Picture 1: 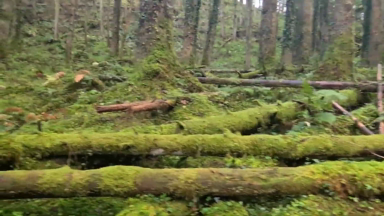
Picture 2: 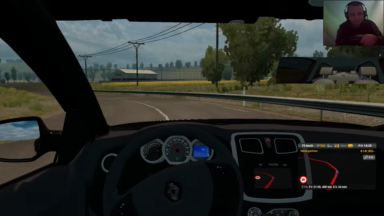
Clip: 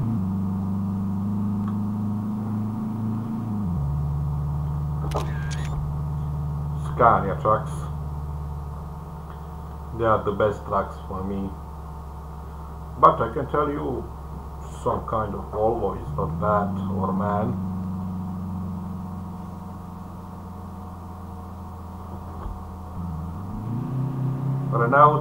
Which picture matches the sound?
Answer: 2